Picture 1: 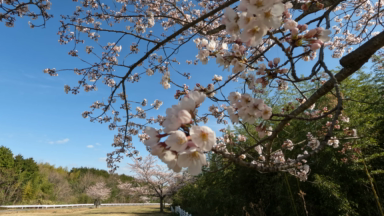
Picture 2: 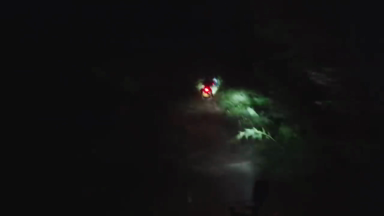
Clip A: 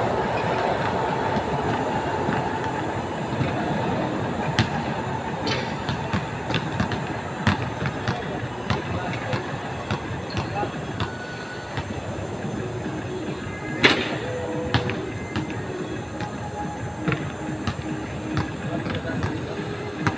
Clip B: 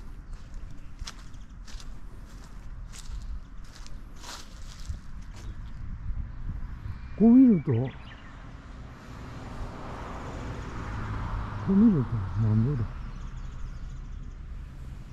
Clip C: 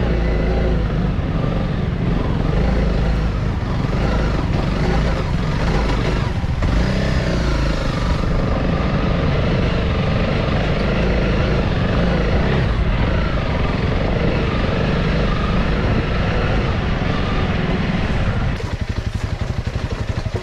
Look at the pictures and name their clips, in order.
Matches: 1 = B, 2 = C